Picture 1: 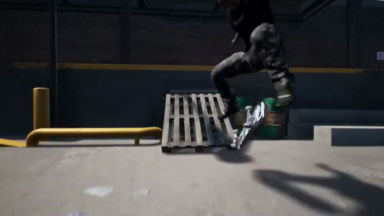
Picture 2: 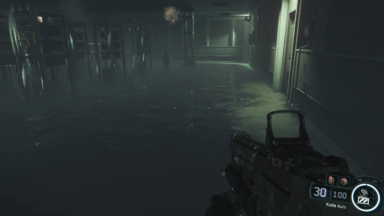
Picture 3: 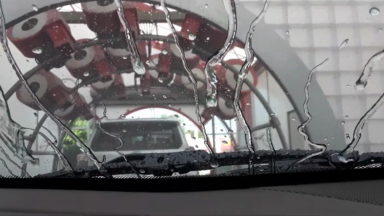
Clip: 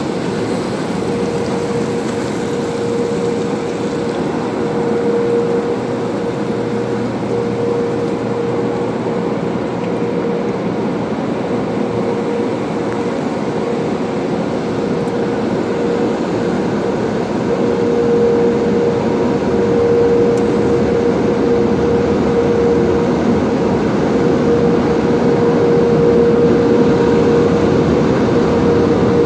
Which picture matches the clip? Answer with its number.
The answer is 3